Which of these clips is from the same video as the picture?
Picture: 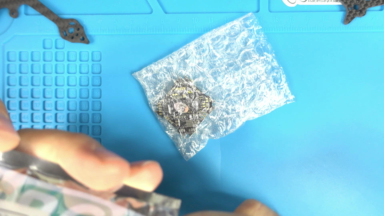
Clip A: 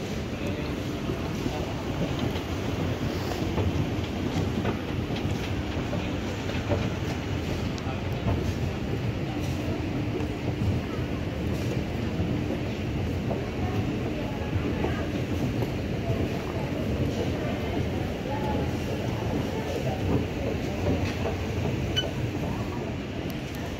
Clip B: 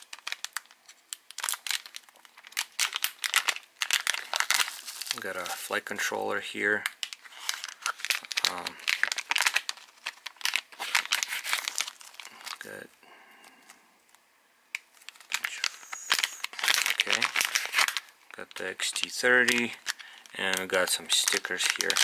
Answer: B